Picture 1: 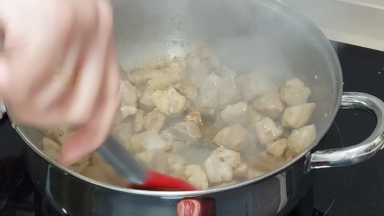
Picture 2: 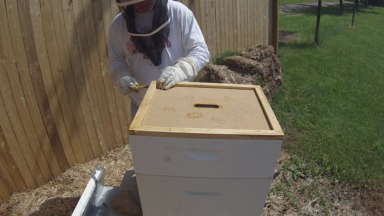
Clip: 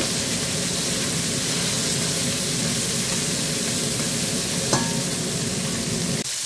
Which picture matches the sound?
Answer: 1